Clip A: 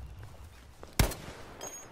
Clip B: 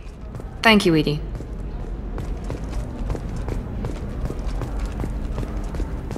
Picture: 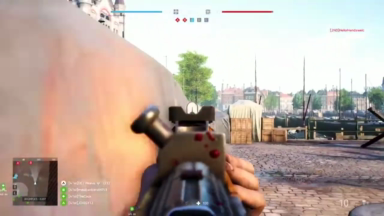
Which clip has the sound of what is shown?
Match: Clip A